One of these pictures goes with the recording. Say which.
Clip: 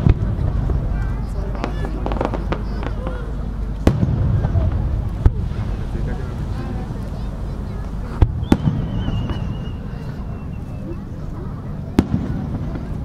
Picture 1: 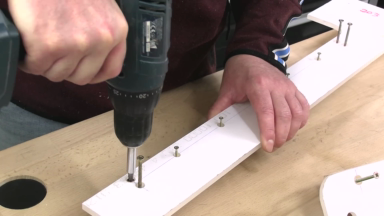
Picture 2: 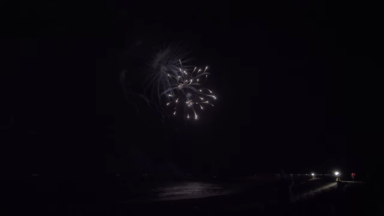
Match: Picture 2